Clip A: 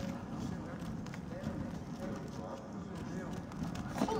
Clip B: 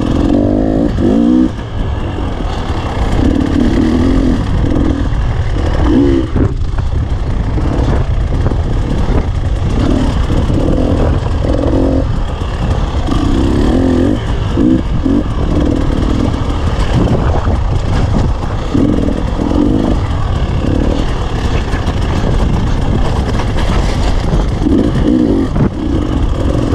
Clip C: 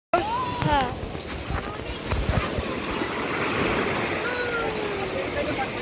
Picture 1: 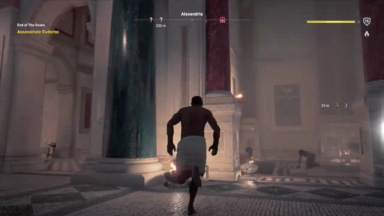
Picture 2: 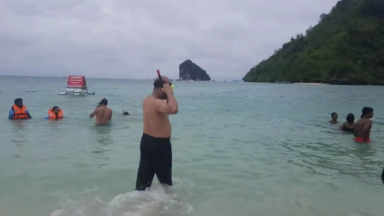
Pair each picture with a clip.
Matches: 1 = A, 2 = C